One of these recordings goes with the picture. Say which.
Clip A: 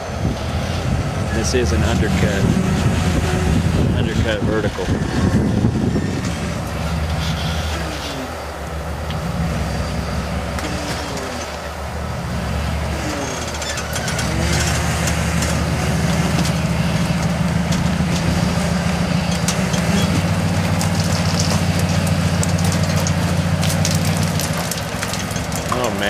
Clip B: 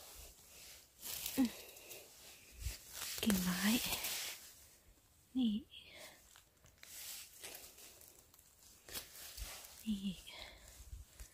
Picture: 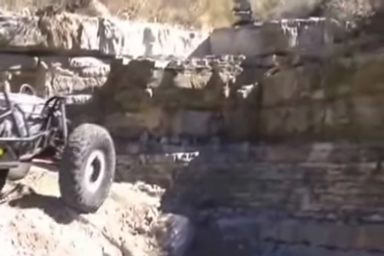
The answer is A